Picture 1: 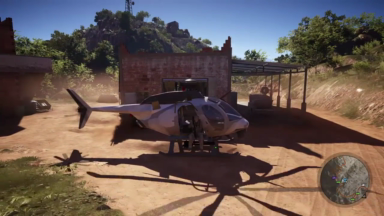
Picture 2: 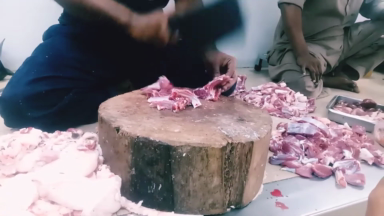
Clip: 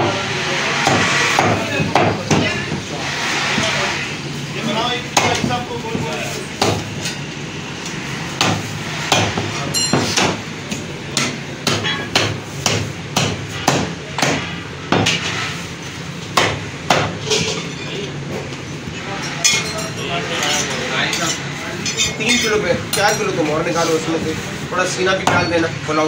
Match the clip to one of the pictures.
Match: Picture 2